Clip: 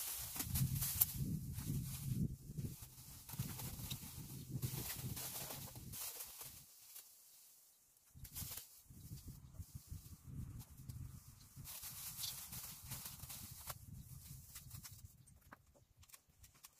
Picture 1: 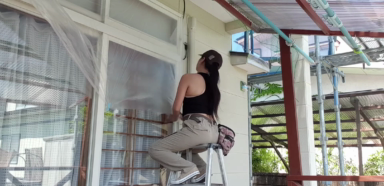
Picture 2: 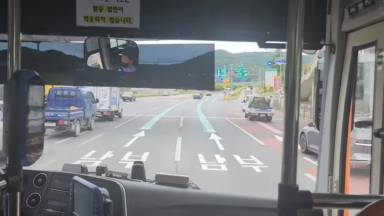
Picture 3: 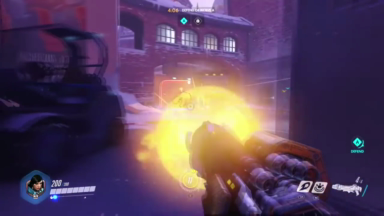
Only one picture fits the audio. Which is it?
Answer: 1